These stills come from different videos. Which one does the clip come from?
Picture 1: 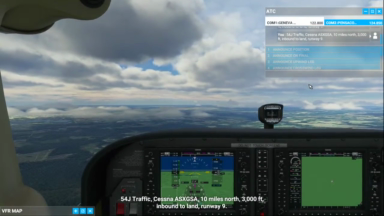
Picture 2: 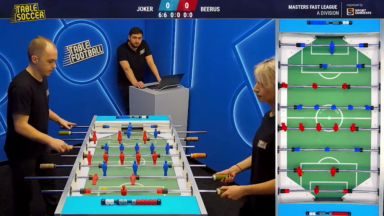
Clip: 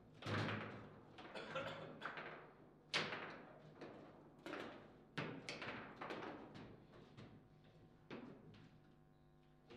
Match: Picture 2